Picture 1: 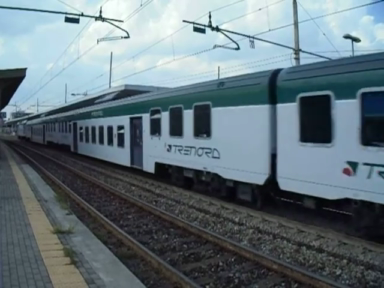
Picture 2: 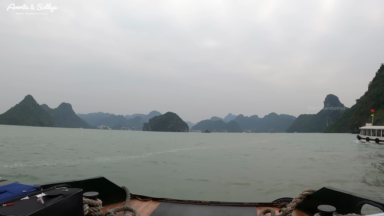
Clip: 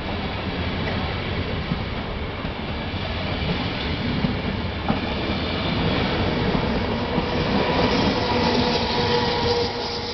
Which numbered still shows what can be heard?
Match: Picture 1